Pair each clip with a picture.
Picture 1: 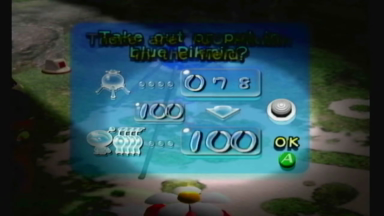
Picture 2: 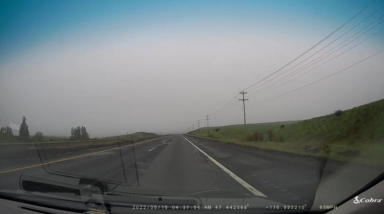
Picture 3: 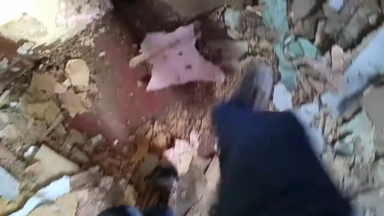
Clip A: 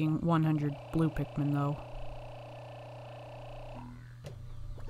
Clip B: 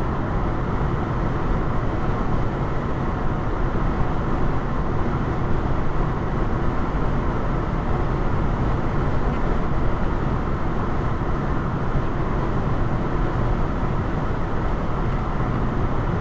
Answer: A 1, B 2